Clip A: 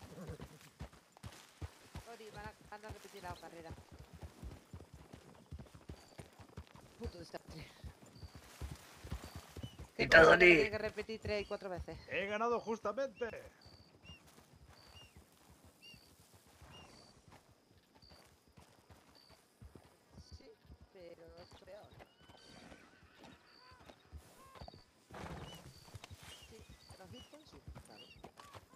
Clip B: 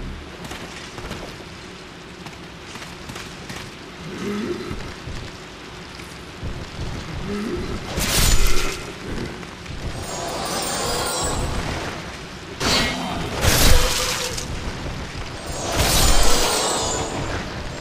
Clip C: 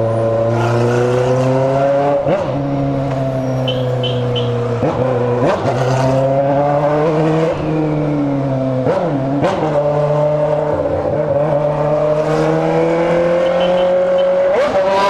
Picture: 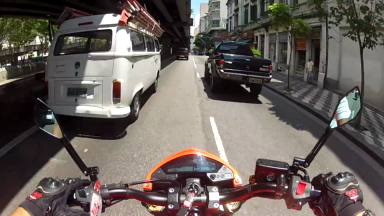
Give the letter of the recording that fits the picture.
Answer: C